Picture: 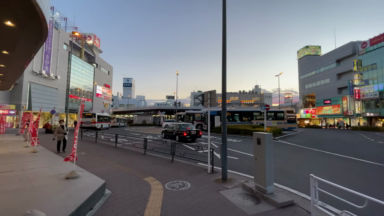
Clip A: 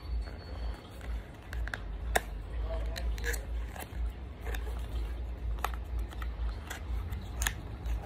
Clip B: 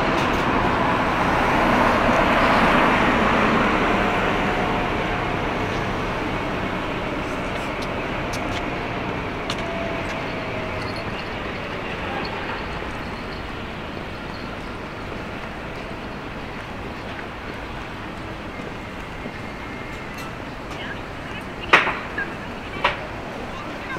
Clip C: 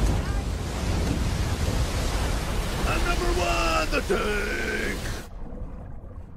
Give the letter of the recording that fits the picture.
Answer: B